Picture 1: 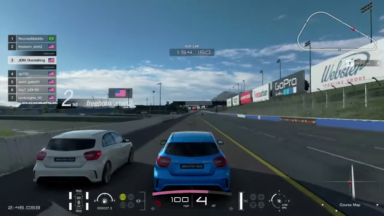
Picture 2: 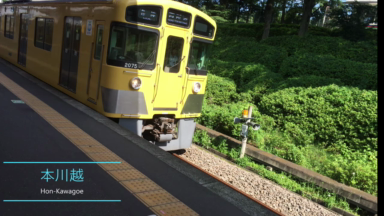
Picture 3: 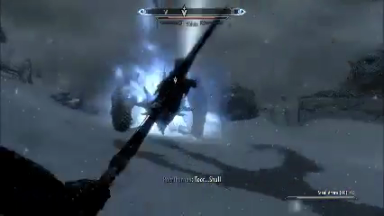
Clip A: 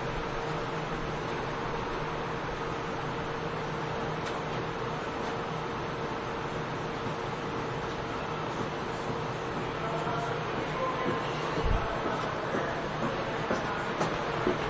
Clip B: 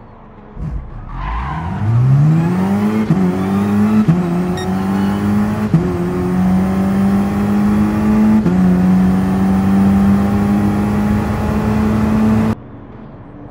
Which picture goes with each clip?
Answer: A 2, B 1